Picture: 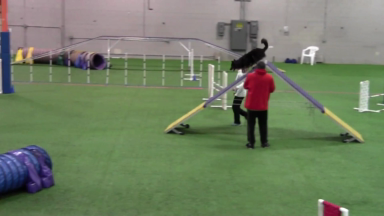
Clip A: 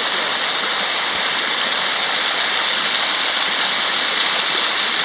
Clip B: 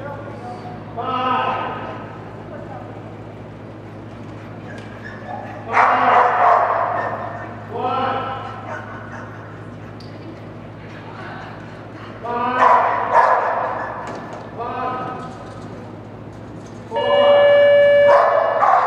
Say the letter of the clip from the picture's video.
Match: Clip B